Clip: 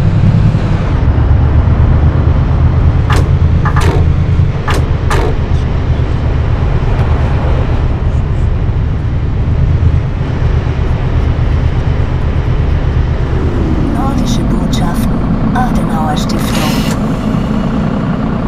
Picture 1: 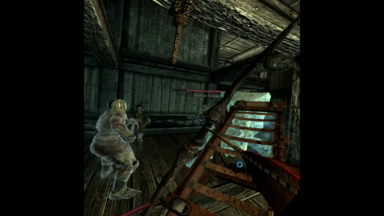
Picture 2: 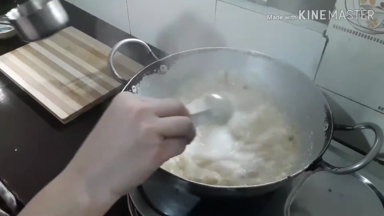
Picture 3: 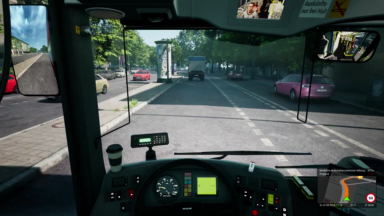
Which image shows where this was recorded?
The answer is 3